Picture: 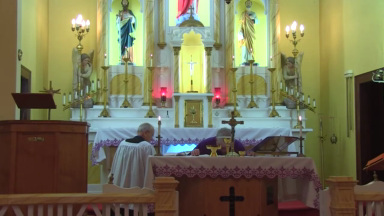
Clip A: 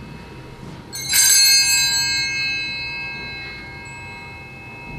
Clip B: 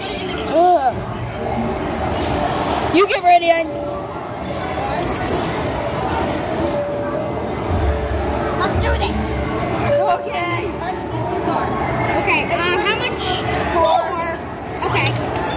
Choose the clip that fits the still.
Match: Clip A